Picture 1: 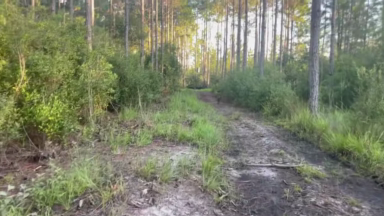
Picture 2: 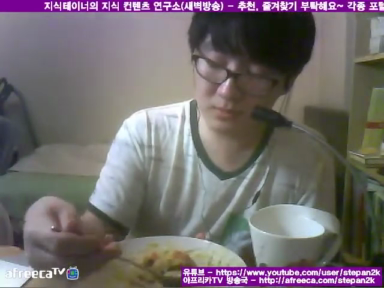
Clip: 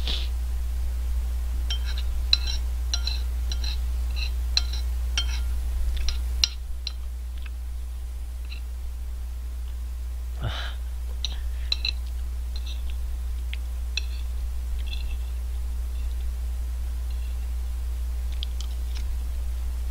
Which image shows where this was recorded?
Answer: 2